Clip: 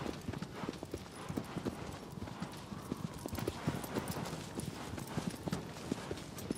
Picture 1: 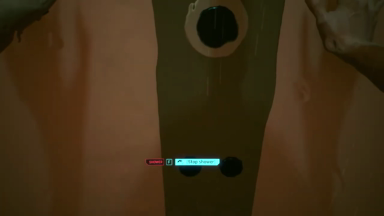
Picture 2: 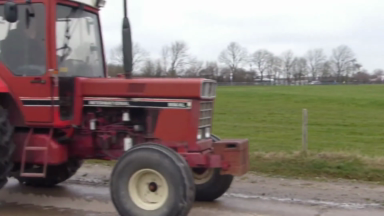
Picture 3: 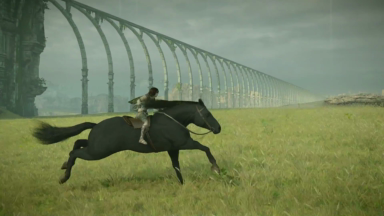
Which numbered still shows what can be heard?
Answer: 3